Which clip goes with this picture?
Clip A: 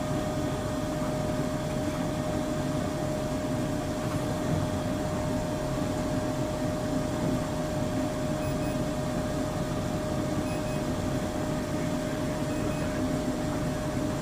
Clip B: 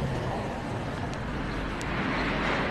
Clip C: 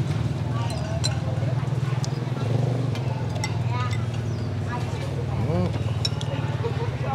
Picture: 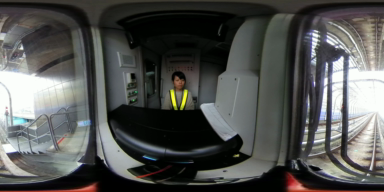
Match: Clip A